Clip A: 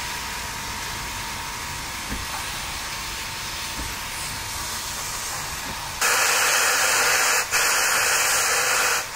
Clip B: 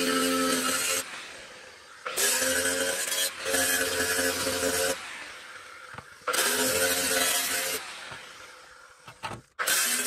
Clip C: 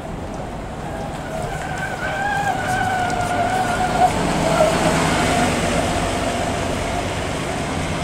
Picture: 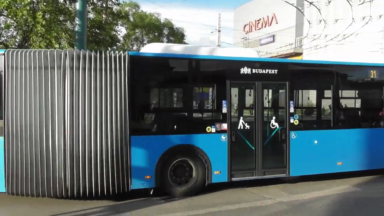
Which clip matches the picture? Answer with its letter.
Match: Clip C